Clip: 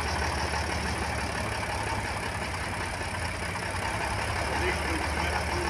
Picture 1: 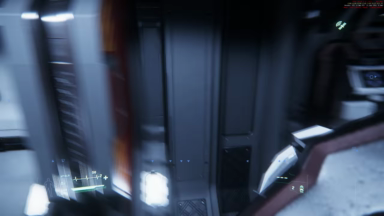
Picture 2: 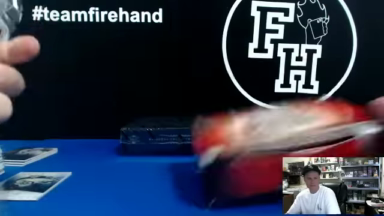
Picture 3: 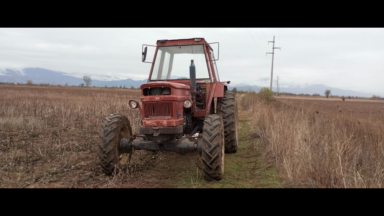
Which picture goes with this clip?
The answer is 3